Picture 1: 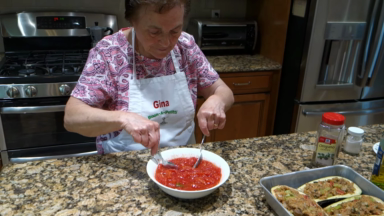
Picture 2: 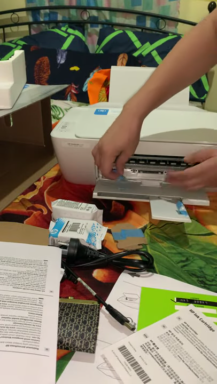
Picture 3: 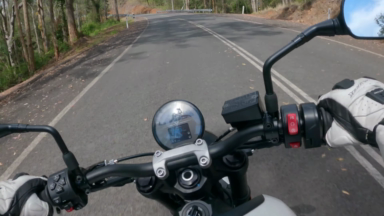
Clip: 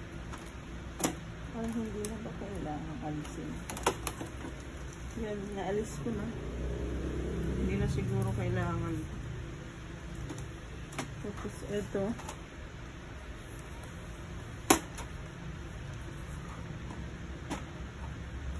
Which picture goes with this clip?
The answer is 2